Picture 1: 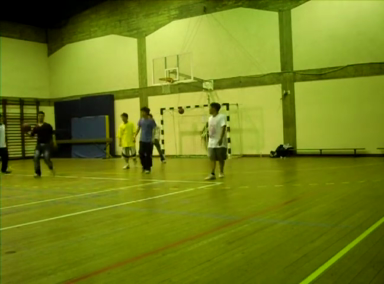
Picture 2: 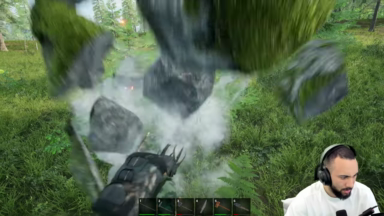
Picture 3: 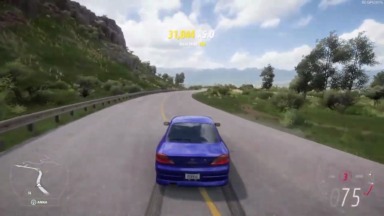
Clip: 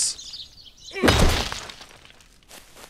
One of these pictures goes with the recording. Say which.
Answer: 2